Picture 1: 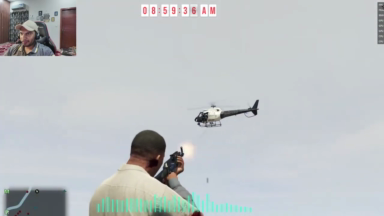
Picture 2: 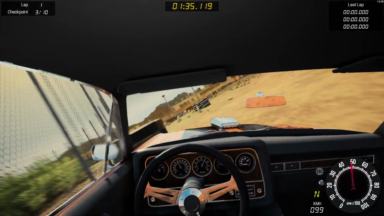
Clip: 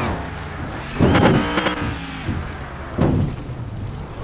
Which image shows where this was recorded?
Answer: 2